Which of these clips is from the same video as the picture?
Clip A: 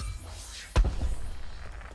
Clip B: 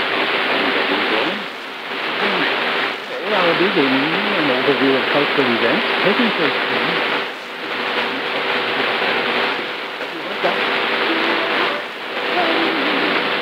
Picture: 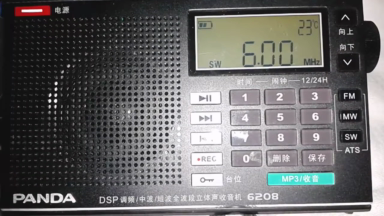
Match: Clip B